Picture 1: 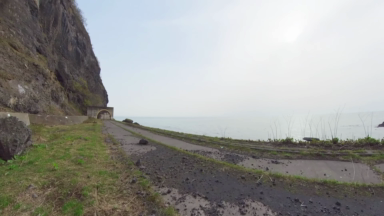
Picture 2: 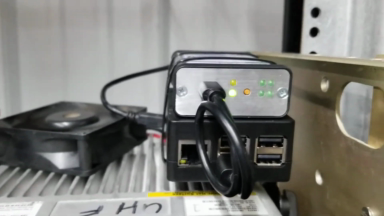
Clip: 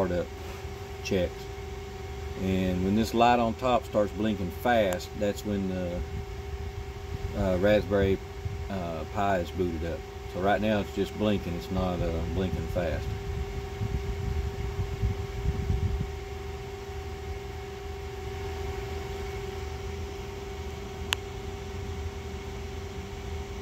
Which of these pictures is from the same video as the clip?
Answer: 2